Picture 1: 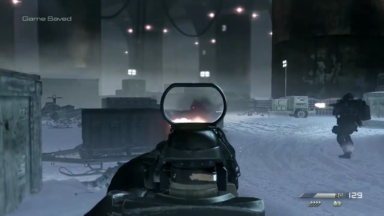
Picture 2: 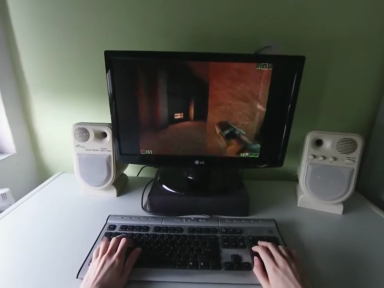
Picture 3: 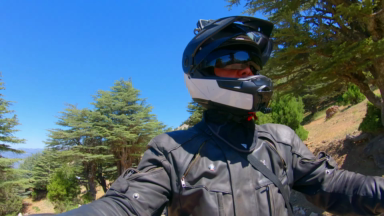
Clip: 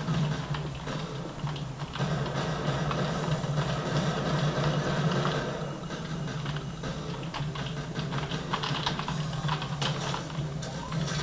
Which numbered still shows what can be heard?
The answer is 2